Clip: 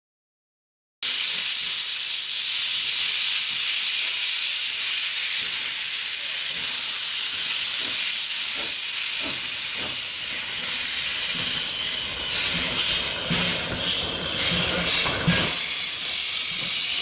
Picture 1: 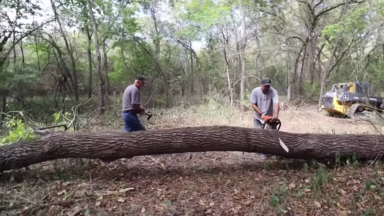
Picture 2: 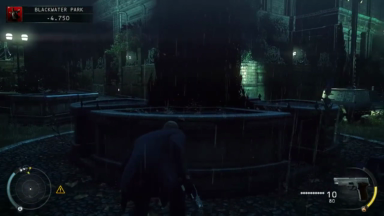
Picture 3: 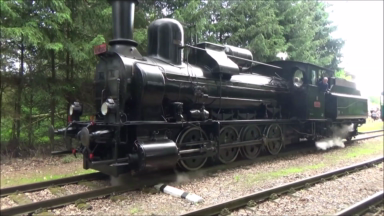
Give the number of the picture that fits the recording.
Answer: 3